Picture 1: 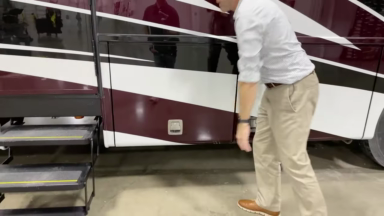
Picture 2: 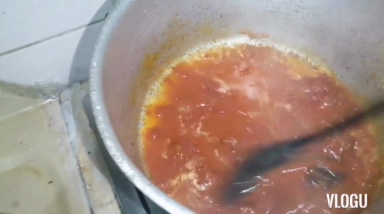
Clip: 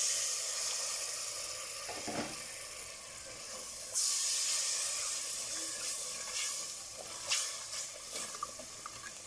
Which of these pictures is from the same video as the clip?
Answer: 2